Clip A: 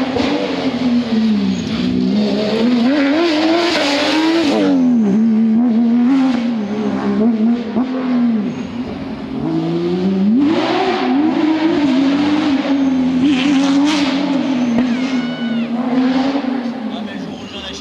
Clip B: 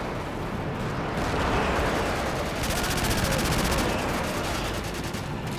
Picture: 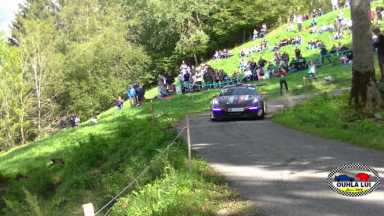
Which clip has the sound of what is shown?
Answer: A